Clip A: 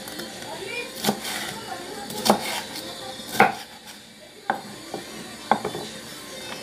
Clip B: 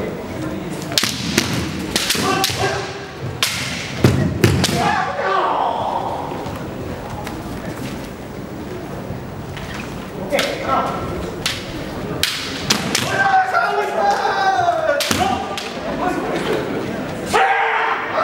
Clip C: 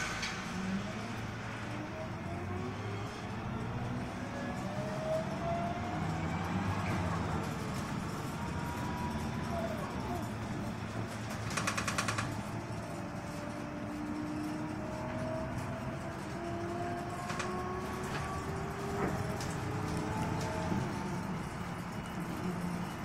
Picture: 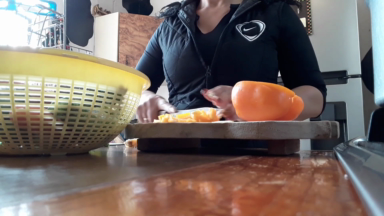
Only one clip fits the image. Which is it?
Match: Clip A